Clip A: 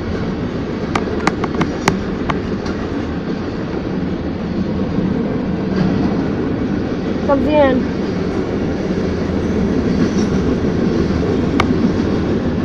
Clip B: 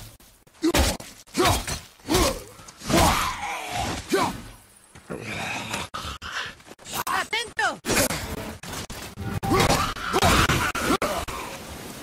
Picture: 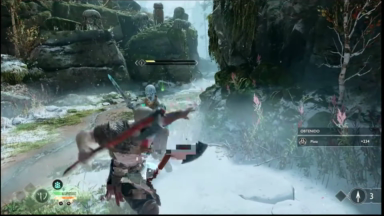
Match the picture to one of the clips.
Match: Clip B